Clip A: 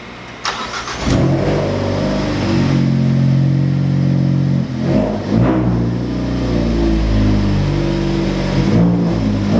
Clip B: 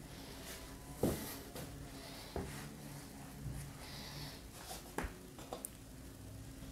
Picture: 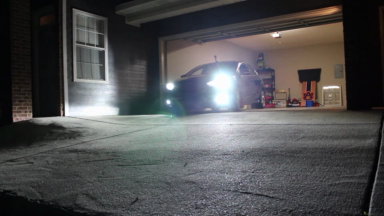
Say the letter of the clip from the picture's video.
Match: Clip A